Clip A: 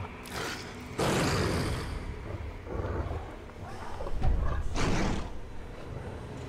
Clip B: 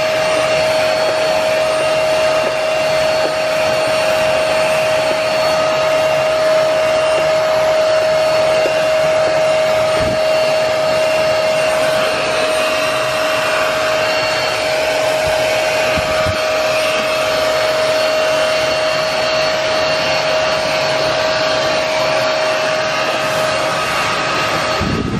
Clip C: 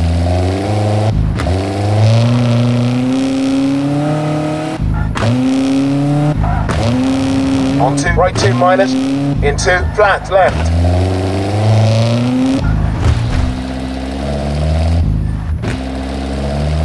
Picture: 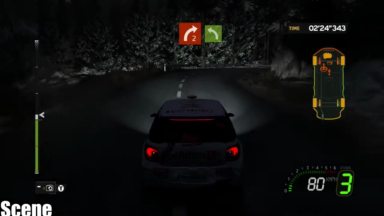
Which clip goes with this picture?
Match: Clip C